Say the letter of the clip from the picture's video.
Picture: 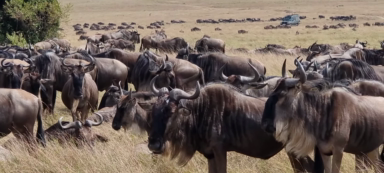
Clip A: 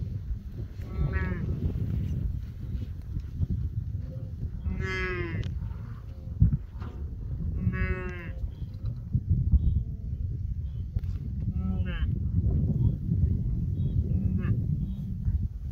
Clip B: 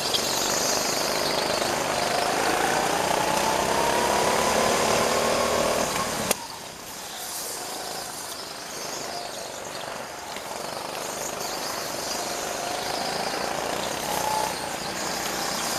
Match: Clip A